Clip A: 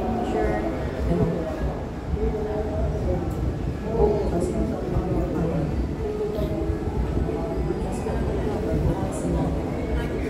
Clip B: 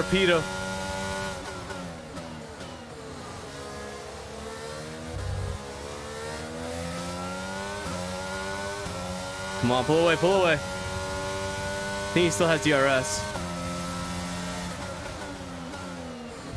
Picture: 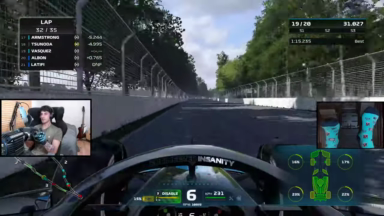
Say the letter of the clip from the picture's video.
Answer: B